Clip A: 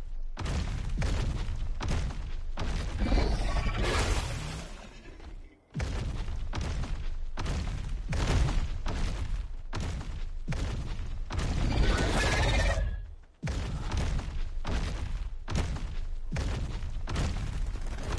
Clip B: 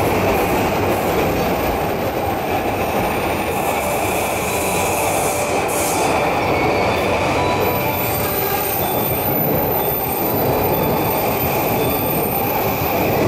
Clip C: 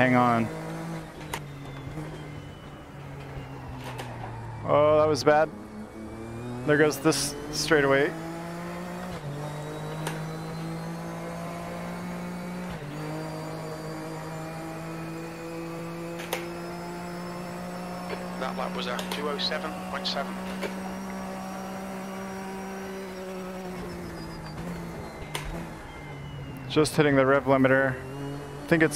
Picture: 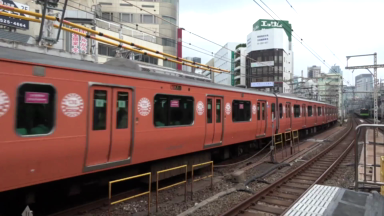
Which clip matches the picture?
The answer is B